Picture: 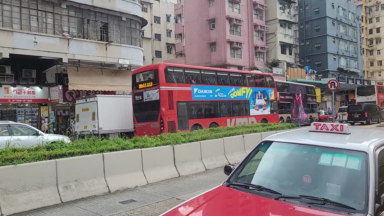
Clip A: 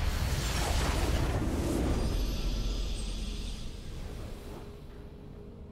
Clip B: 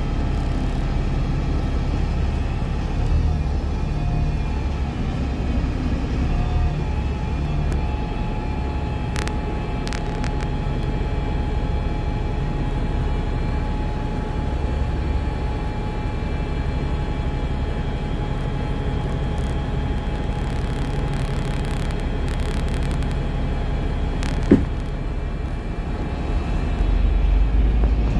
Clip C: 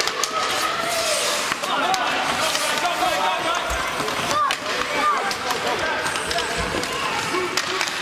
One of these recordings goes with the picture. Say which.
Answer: B